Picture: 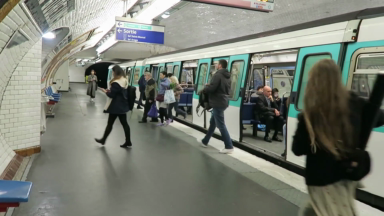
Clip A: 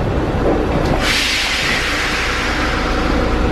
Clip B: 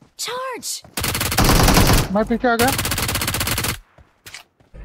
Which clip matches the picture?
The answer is A